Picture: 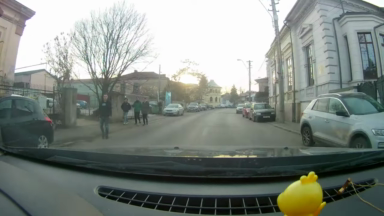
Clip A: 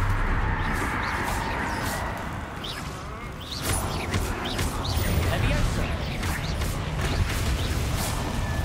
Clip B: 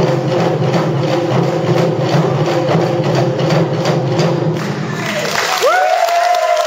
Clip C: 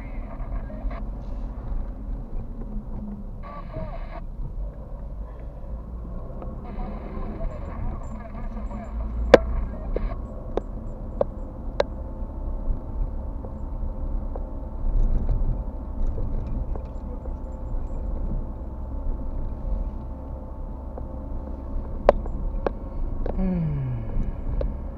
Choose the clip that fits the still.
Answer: C